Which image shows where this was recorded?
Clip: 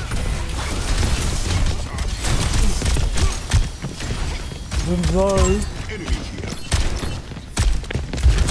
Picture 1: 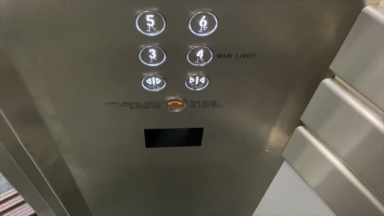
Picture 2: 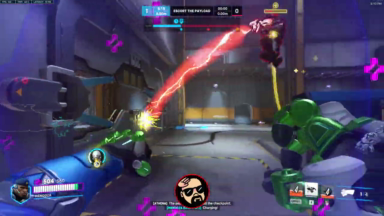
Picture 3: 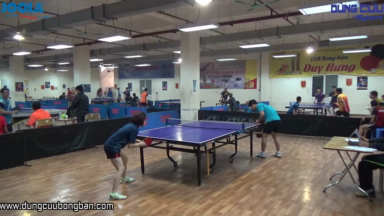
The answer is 2